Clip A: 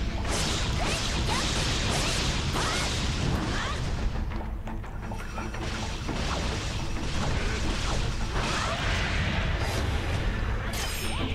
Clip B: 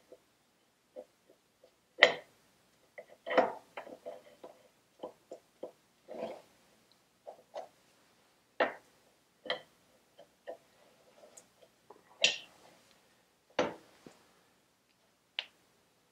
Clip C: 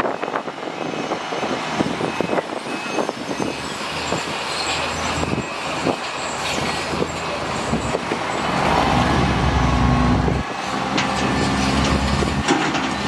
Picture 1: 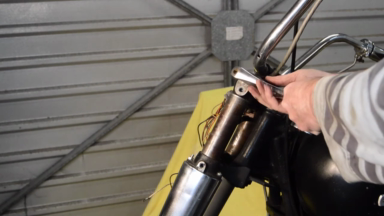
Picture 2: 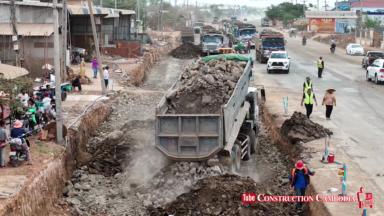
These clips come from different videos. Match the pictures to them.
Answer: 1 B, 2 C